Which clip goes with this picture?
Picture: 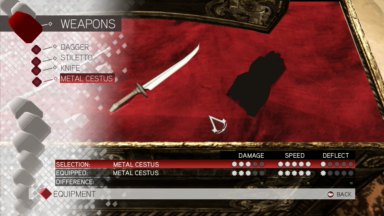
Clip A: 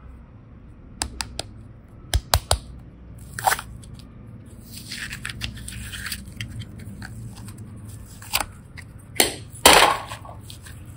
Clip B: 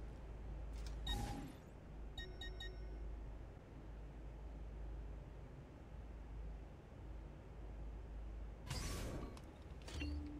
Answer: B